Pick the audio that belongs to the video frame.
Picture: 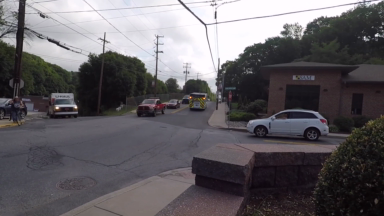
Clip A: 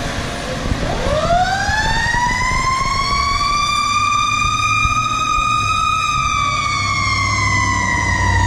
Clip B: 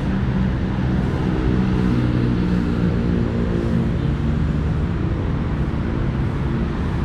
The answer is A